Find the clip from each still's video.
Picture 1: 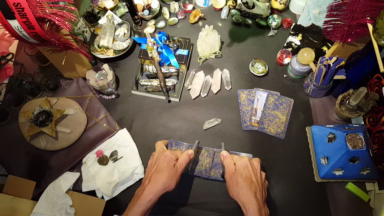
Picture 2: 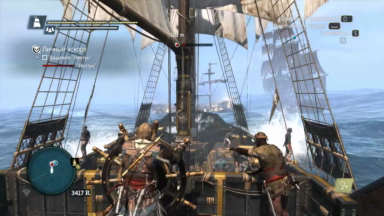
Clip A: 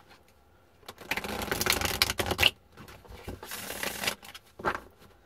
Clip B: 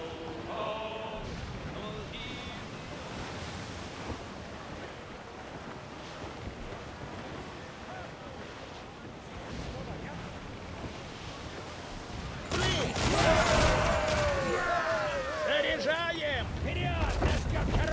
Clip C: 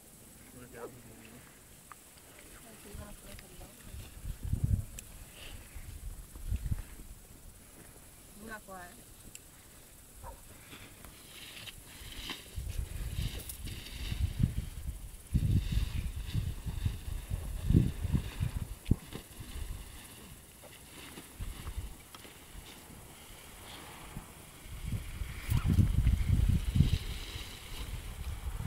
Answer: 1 A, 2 B